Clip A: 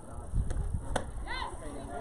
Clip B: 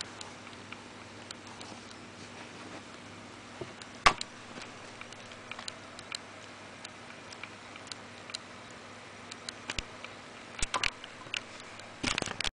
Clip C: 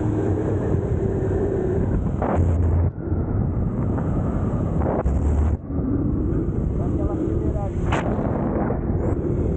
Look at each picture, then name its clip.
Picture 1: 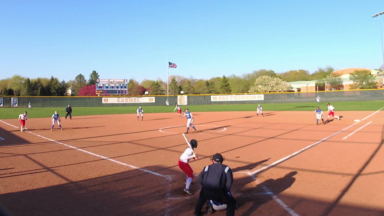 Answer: A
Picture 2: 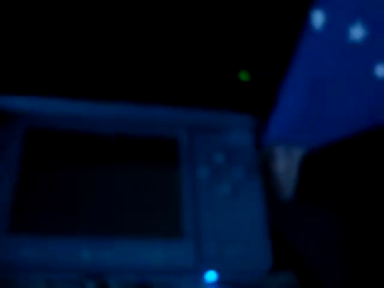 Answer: B